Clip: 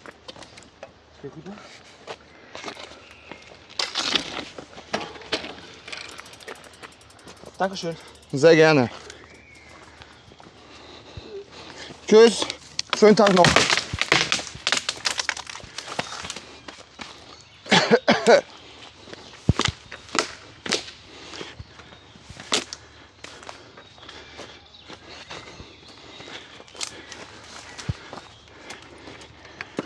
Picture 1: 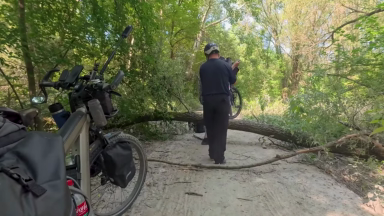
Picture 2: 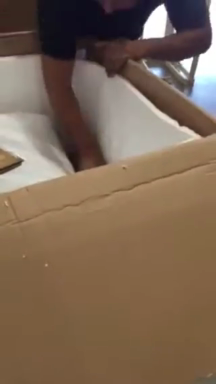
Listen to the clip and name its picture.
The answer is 1